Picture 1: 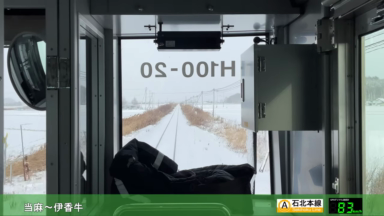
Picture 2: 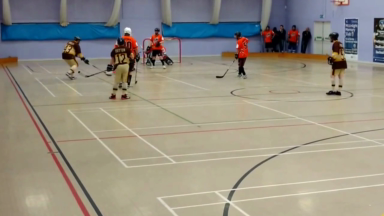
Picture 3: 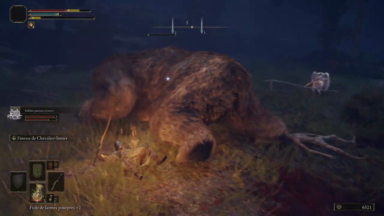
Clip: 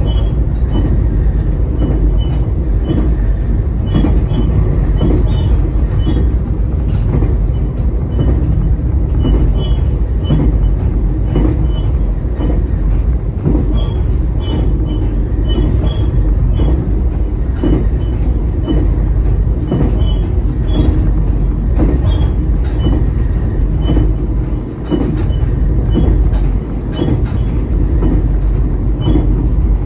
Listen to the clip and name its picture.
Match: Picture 1